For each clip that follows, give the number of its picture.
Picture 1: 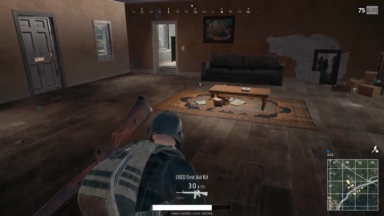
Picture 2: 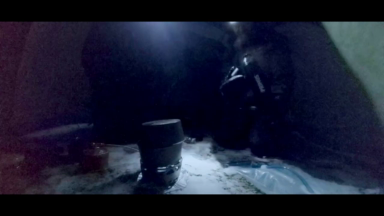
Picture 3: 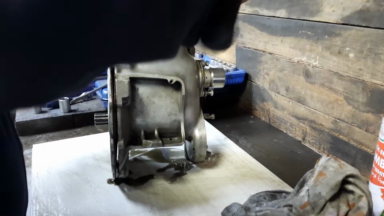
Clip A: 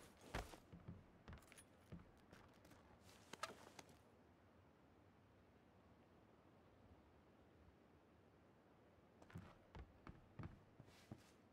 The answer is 1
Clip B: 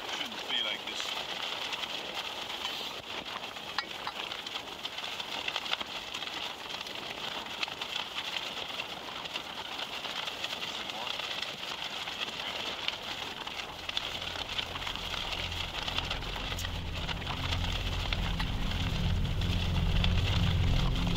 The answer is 2